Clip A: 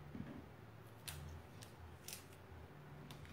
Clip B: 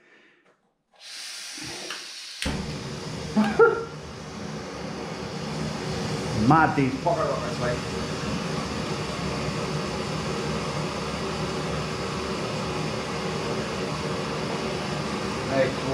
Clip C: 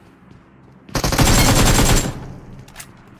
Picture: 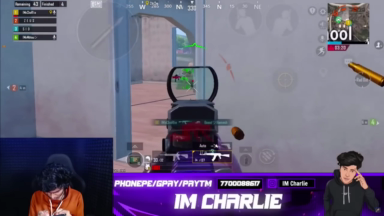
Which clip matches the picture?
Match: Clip C